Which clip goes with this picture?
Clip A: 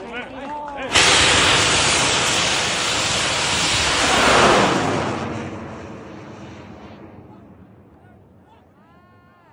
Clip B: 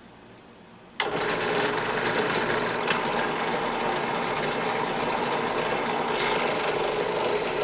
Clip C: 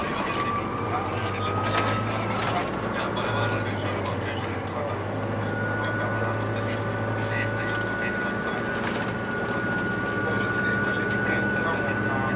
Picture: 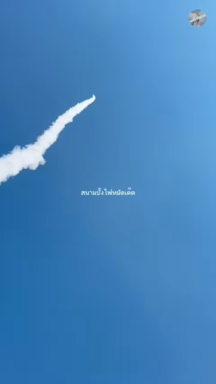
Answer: A